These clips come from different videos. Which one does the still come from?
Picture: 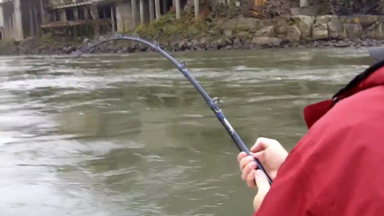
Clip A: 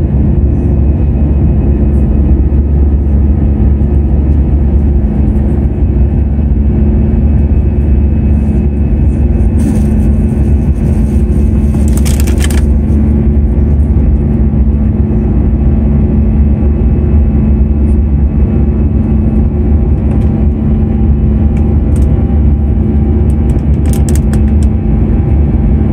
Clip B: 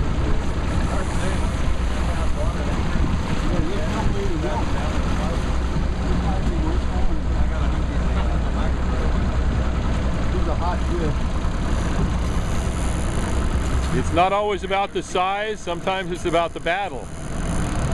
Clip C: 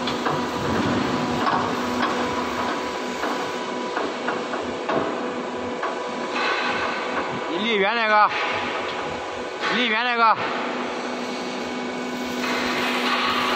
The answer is B